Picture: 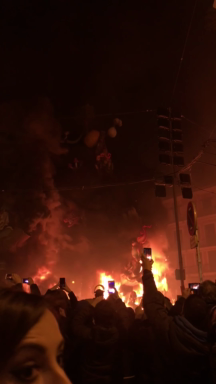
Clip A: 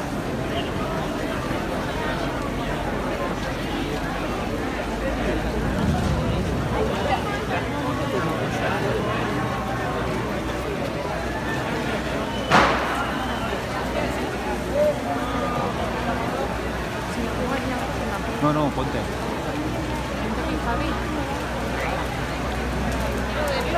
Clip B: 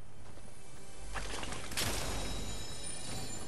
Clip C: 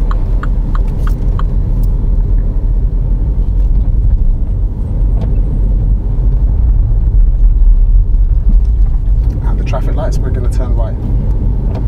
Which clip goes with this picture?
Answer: A